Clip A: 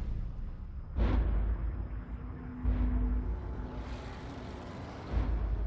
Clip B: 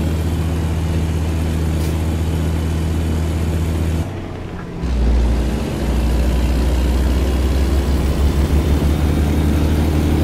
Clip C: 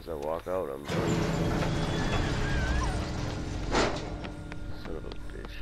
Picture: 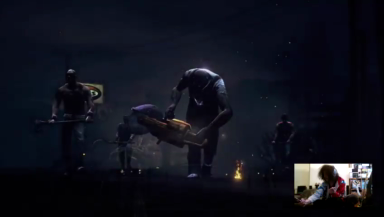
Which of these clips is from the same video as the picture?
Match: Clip A